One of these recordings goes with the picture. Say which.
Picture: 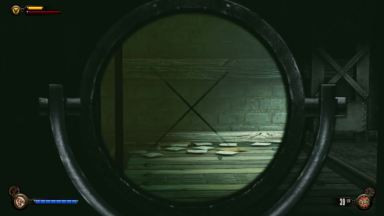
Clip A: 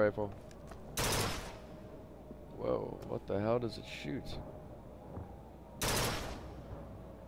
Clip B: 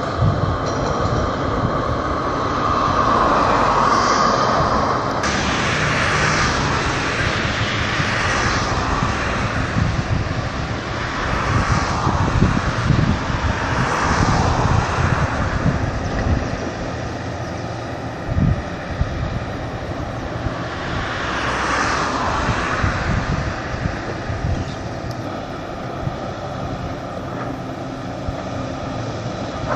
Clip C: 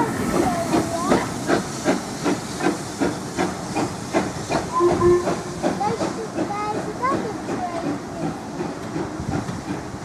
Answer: A